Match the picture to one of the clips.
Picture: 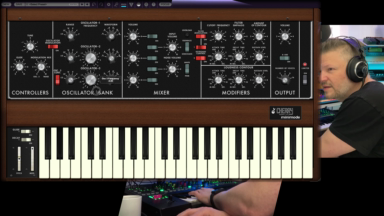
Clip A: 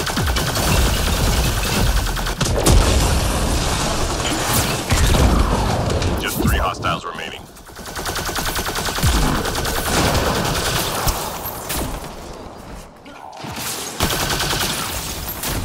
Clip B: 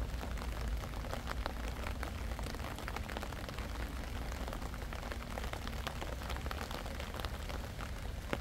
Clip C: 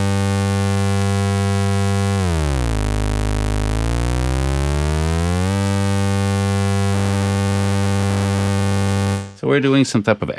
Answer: C